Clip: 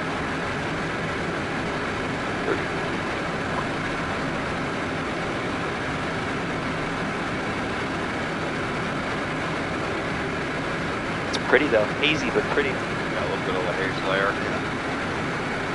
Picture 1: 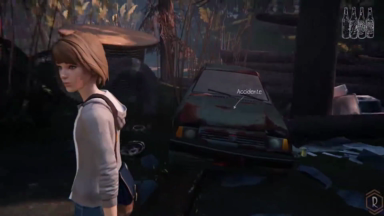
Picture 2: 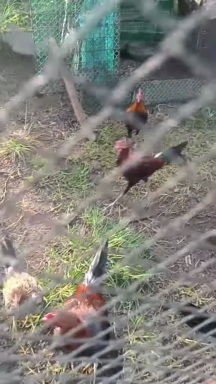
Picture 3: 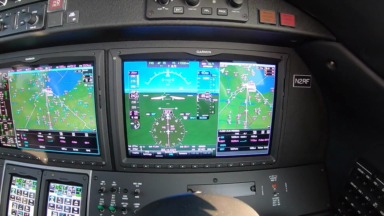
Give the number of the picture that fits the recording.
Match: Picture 3